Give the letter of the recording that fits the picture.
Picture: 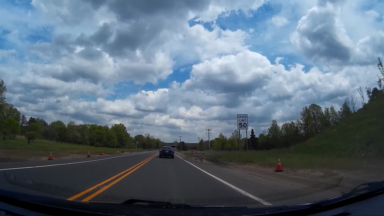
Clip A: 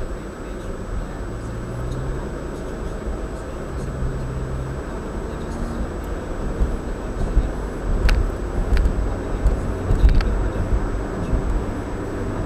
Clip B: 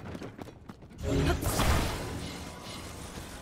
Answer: A